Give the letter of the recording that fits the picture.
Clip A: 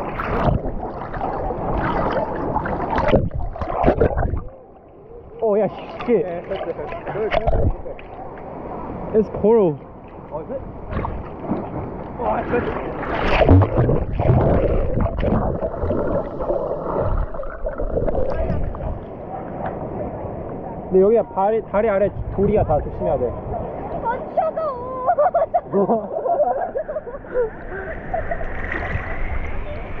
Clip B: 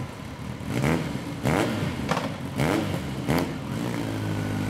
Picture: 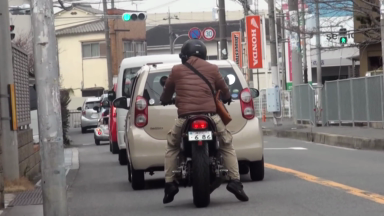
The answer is B